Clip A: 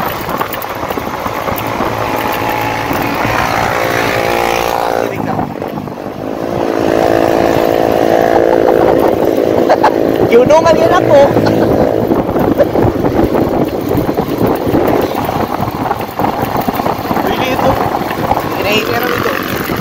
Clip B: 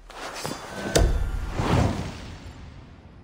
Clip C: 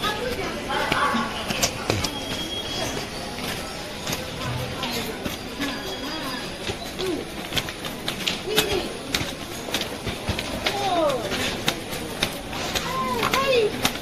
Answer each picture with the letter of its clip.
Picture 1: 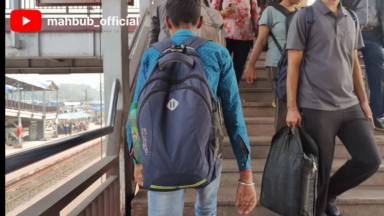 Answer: C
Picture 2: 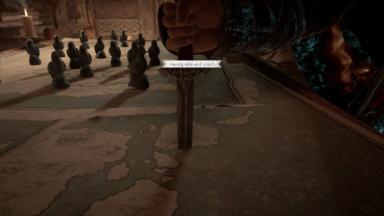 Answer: B